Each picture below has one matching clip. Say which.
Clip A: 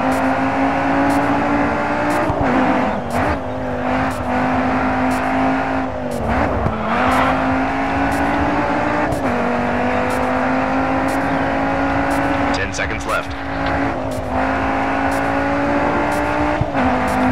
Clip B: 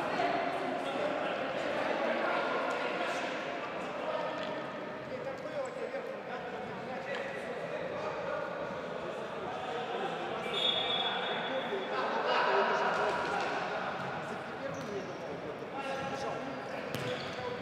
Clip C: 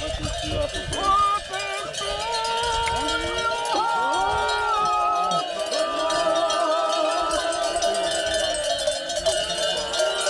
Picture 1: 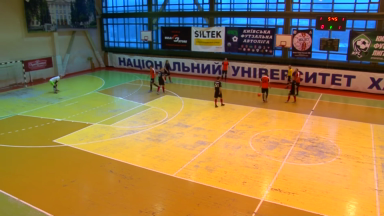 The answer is B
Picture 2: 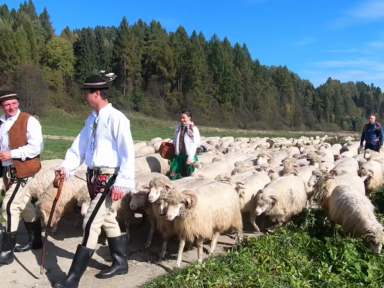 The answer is C